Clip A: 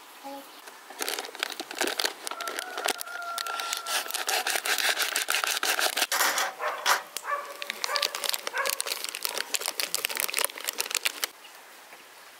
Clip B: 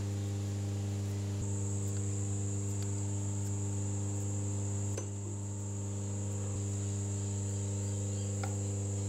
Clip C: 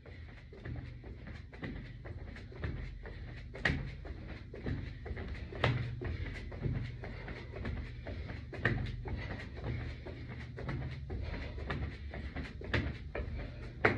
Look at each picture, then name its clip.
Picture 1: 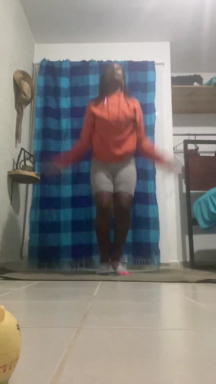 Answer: C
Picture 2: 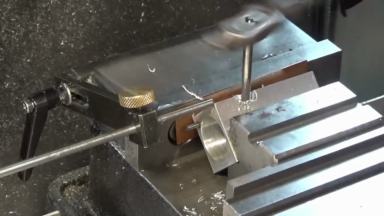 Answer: B